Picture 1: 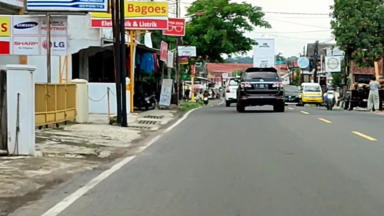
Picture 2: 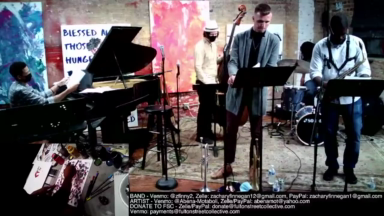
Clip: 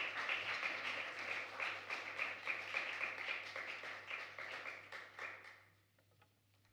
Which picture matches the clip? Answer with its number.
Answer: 2